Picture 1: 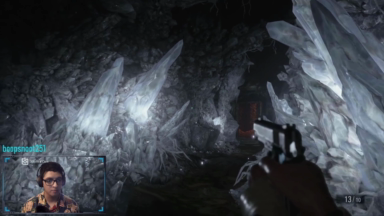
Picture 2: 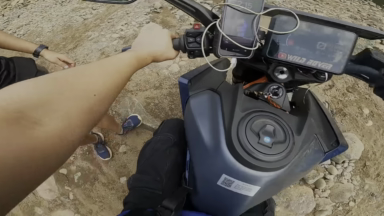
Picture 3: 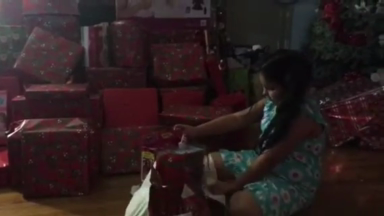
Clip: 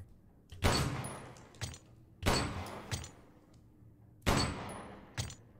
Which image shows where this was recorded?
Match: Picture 1